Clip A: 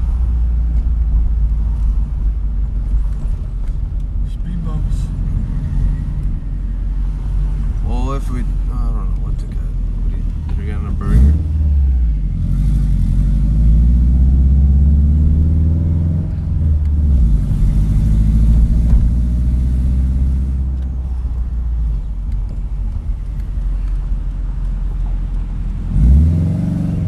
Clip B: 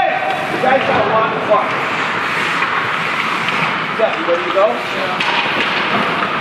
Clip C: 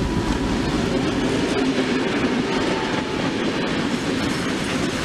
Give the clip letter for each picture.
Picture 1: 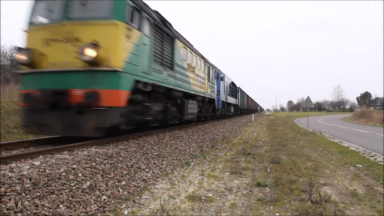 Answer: C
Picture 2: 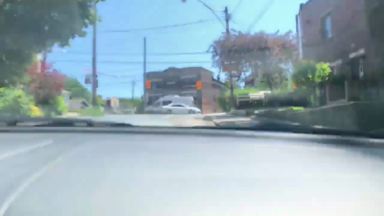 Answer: A